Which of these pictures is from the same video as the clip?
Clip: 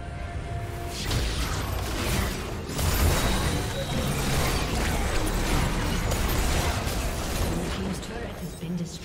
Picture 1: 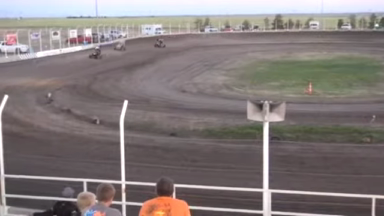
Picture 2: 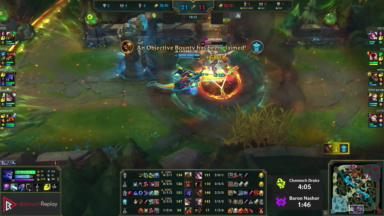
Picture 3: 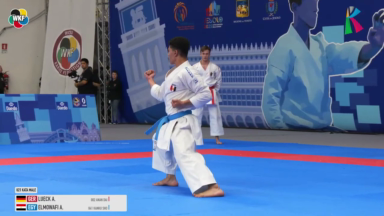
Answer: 2